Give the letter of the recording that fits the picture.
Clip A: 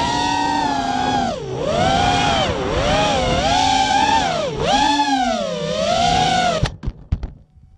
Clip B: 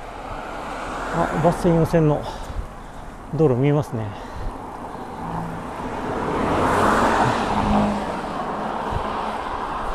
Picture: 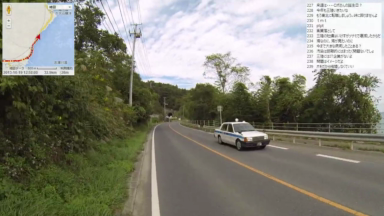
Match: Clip B